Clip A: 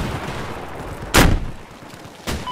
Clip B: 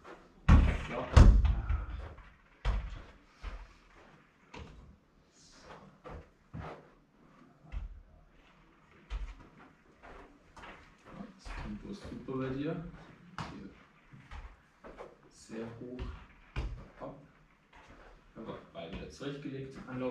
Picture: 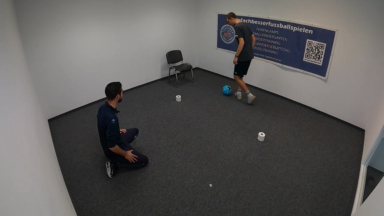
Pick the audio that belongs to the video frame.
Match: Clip B